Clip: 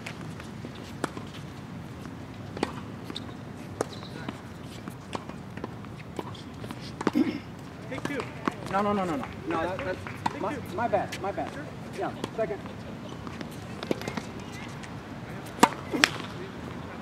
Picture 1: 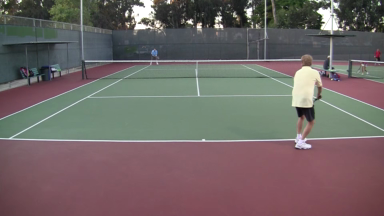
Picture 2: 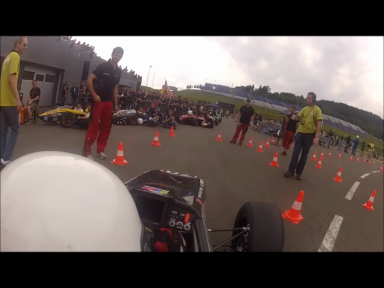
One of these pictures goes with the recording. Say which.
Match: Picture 1